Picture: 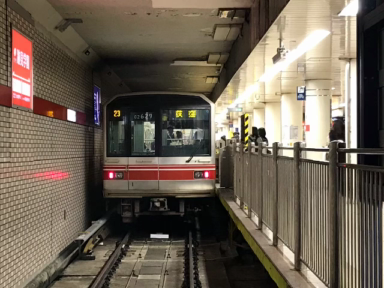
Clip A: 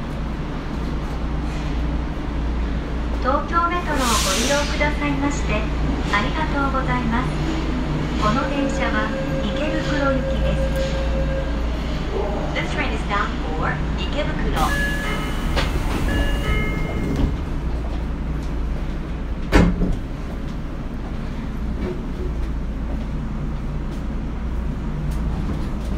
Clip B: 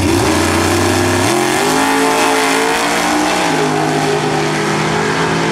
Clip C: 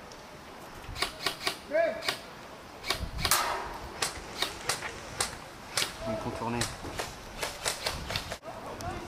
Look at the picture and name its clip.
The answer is A